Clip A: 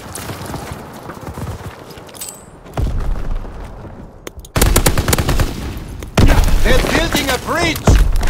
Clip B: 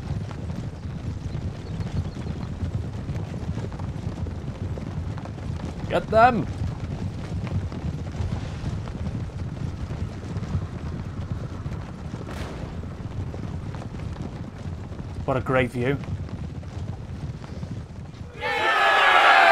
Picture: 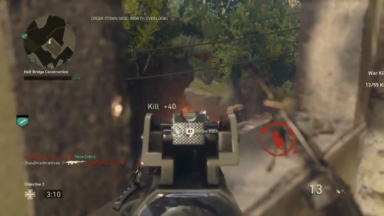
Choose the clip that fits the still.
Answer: A